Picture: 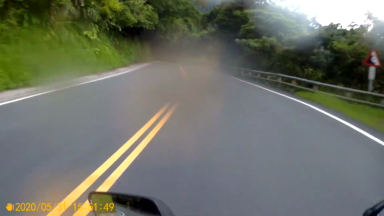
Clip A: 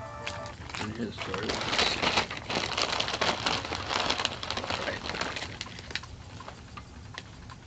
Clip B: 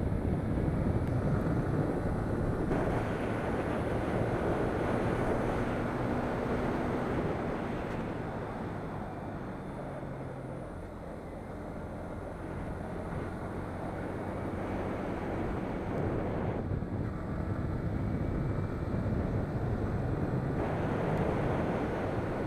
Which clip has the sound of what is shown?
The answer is B